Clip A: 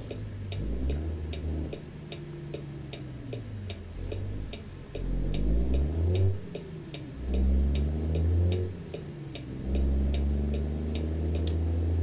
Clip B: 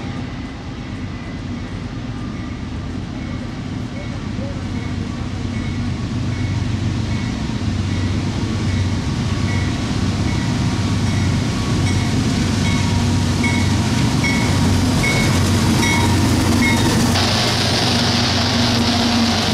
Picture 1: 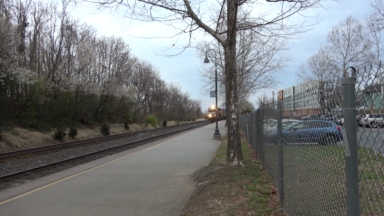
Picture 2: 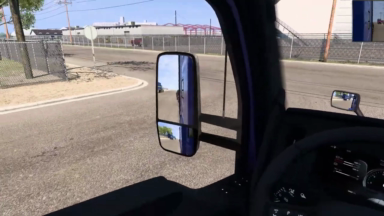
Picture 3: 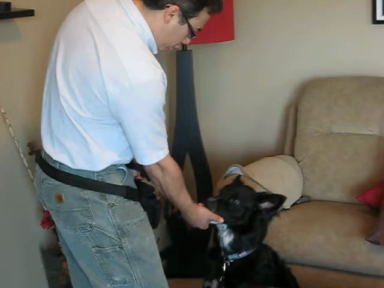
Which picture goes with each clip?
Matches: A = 2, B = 1